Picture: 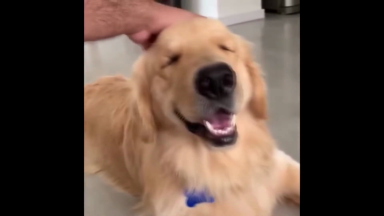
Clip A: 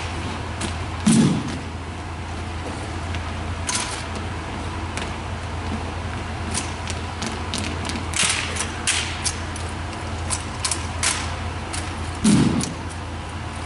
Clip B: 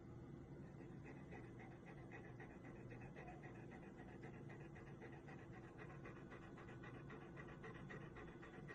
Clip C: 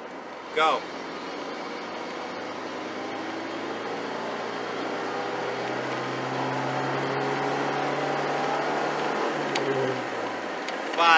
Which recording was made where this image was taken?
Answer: B